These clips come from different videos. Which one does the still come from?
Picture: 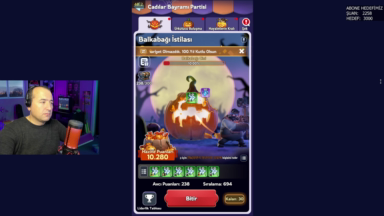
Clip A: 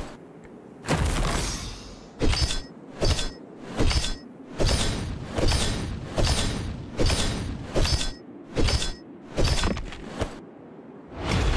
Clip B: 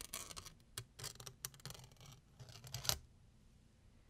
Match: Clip A